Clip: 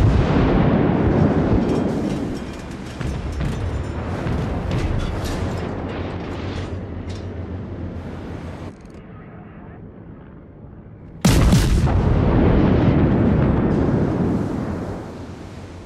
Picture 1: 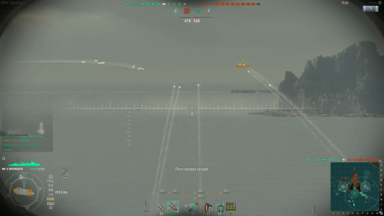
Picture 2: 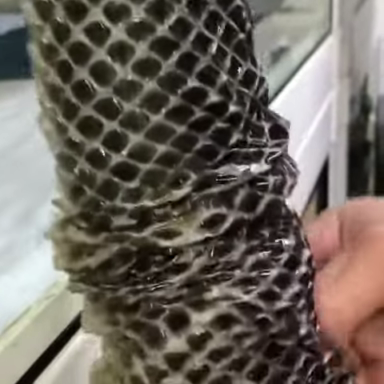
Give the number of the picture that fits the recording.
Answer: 1